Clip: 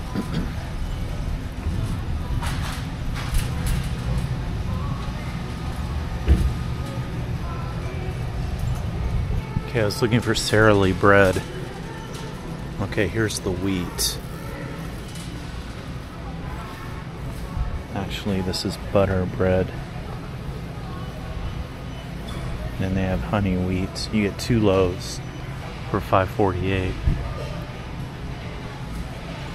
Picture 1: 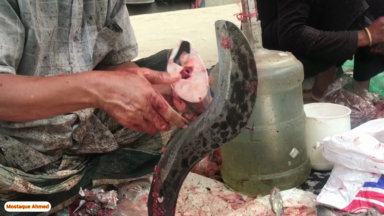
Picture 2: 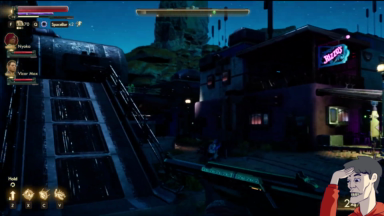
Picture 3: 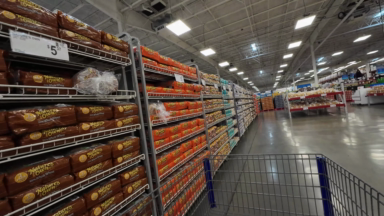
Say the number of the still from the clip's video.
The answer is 3